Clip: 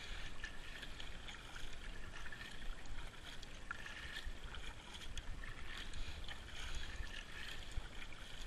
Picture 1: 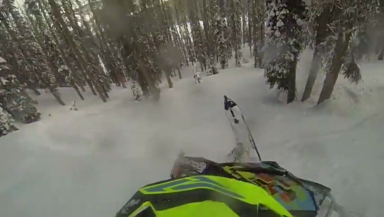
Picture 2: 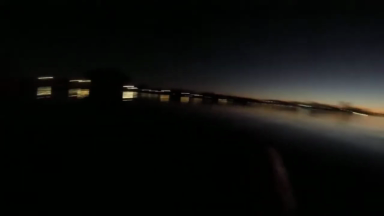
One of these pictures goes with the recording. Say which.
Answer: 2